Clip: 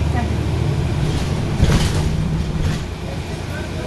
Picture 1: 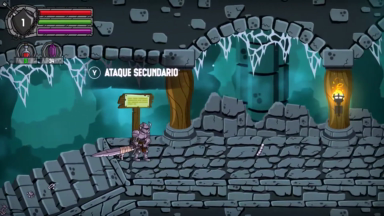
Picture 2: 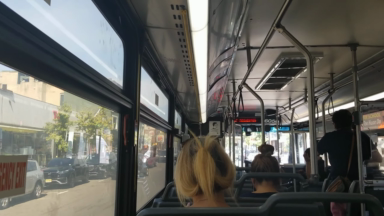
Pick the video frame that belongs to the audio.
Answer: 2